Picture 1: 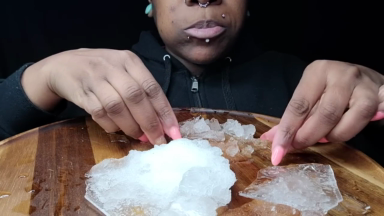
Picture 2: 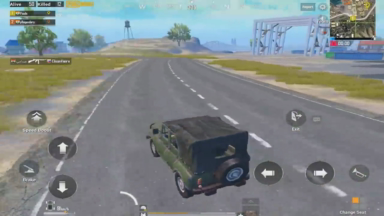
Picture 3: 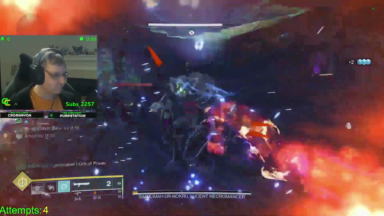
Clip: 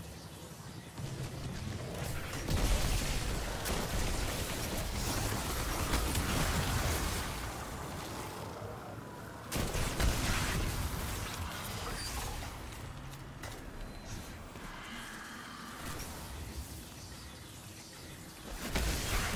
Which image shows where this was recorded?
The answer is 3